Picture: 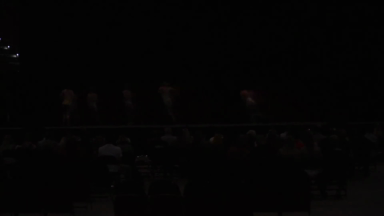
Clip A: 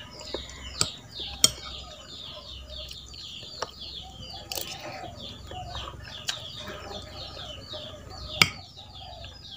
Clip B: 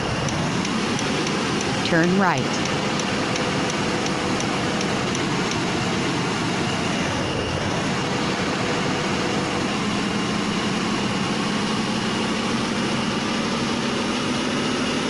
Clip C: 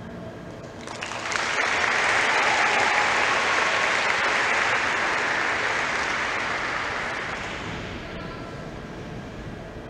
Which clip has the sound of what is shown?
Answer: C